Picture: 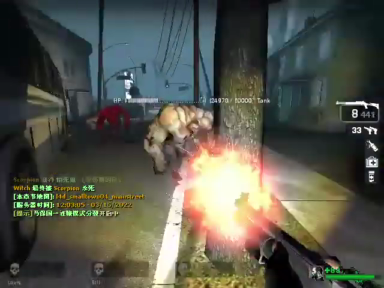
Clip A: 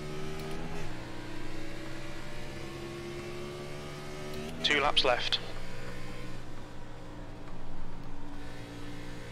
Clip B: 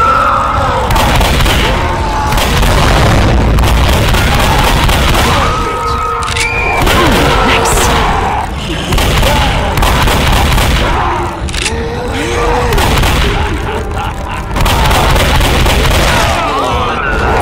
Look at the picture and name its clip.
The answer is B